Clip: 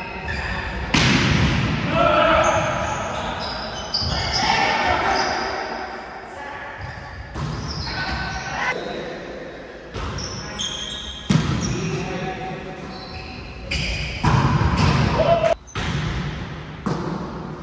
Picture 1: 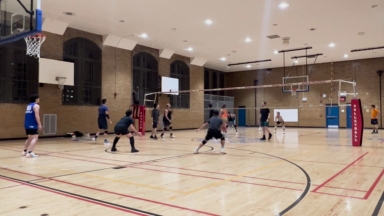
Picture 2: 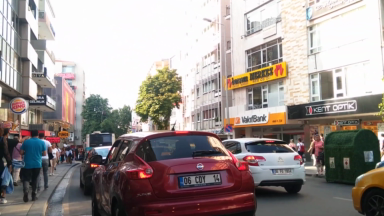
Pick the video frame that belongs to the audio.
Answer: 1